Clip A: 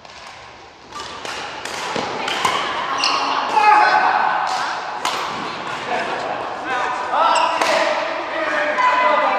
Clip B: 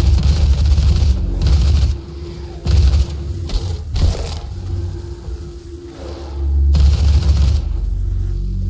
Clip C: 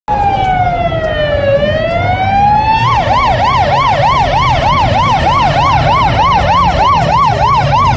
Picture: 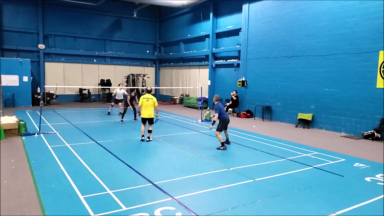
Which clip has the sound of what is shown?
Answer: A